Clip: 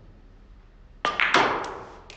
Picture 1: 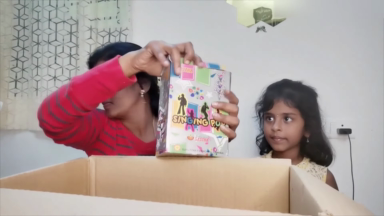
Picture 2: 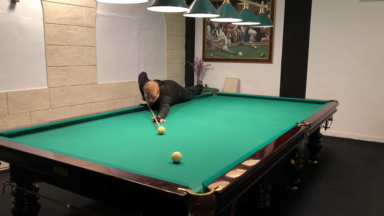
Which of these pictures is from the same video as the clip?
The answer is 2